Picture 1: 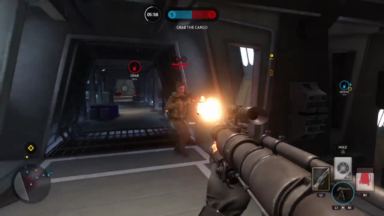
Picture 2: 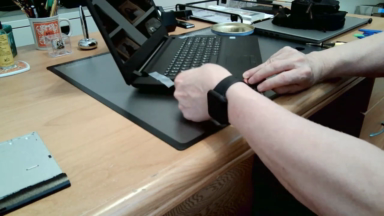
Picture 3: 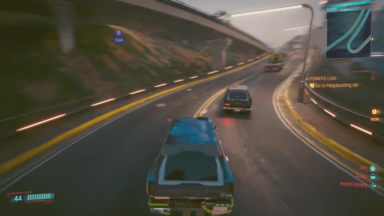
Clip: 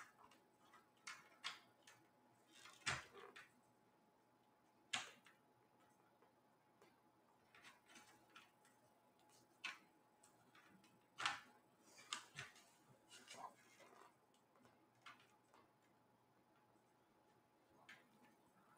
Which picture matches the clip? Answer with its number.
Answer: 2